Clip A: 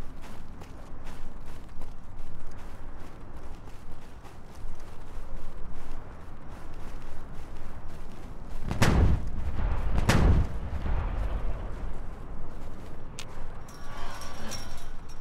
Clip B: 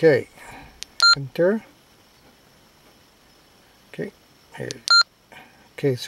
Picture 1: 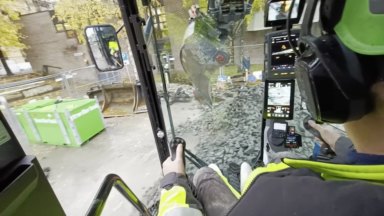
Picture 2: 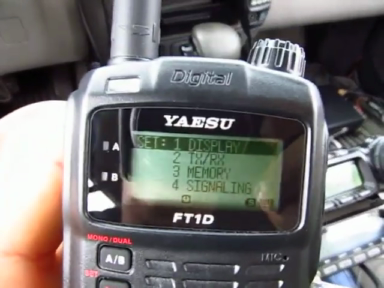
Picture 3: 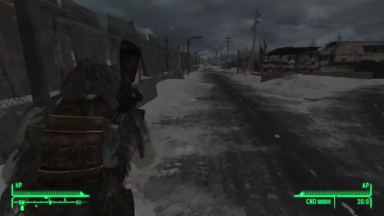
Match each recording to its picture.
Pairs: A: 3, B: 2